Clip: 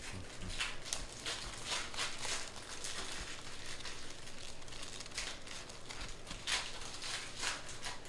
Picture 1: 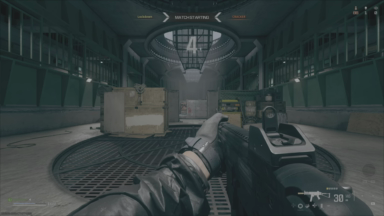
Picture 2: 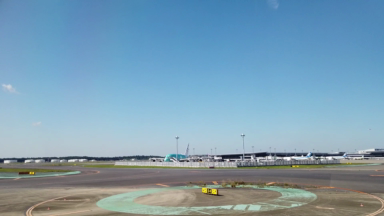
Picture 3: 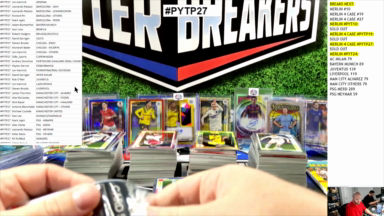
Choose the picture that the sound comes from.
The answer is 3